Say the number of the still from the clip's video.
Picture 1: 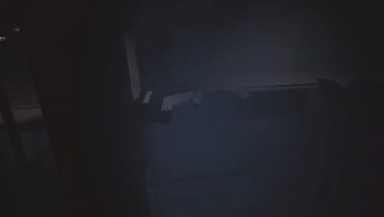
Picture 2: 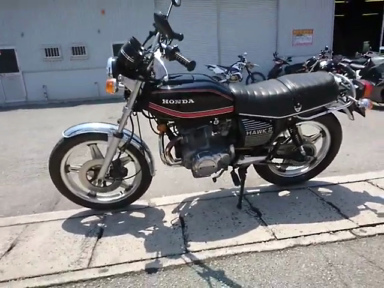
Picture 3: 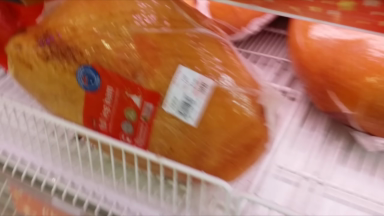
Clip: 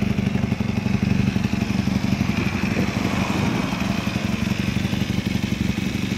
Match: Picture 2